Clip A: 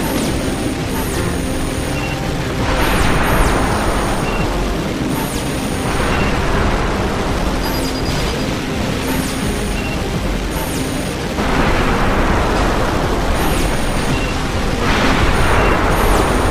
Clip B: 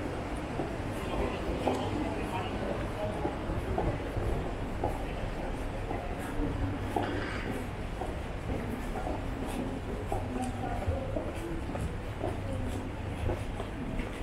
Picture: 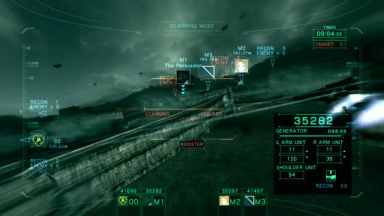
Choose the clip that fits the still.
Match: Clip A